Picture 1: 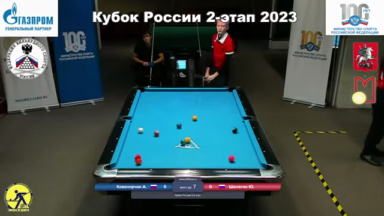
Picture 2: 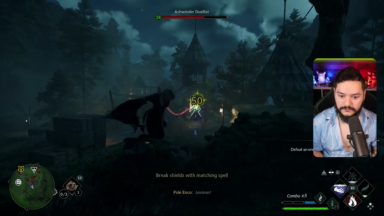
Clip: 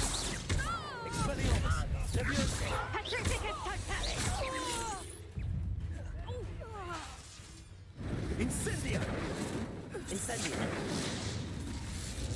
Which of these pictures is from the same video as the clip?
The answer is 2